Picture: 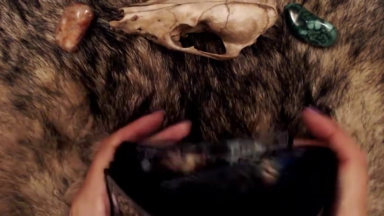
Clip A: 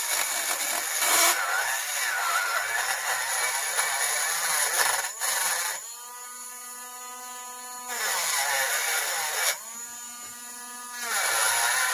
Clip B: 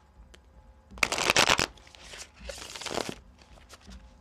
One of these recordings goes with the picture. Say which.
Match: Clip B